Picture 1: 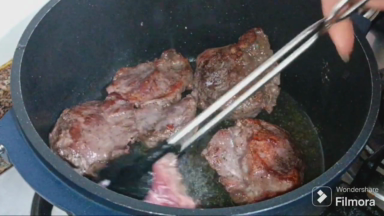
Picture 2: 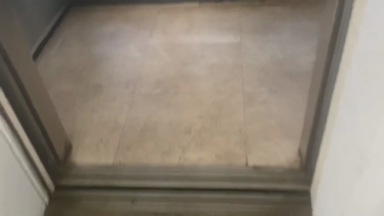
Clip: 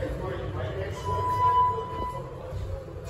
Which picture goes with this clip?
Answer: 2